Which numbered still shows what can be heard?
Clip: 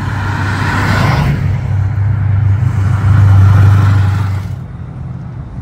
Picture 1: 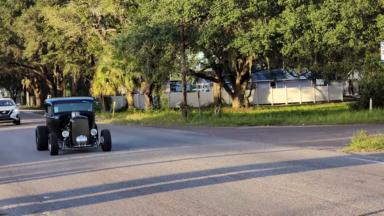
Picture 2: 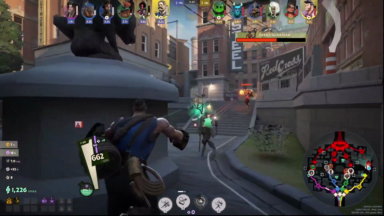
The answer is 1